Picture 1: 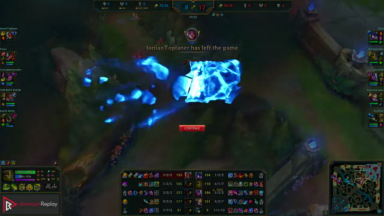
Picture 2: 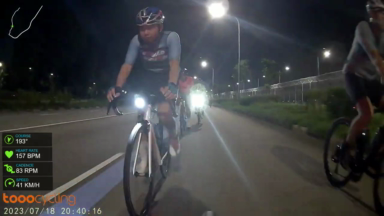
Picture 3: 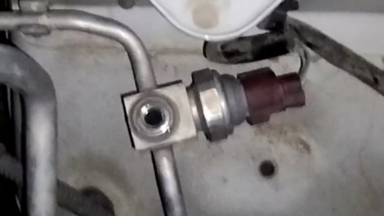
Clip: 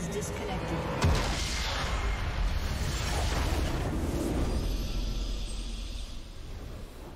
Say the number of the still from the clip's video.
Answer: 1